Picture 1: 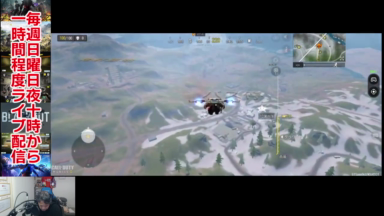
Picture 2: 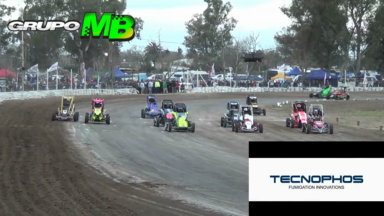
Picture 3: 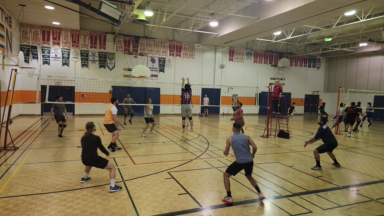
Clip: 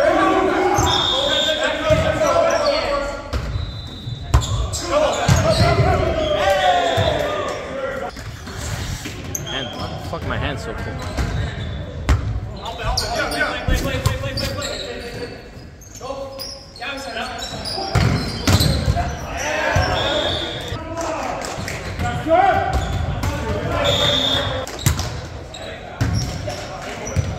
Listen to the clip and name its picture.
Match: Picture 3